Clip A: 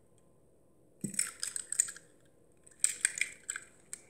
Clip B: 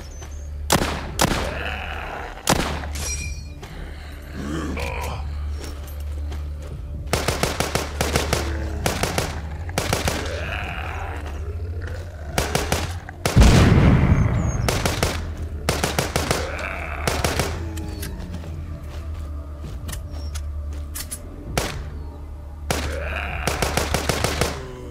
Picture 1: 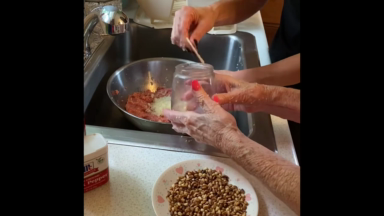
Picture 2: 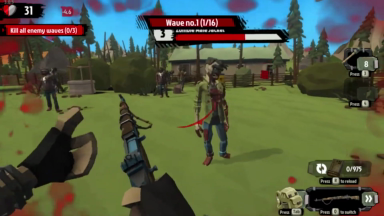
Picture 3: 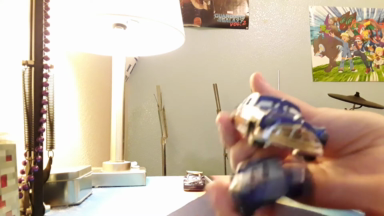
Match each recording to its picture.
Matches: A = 3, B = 2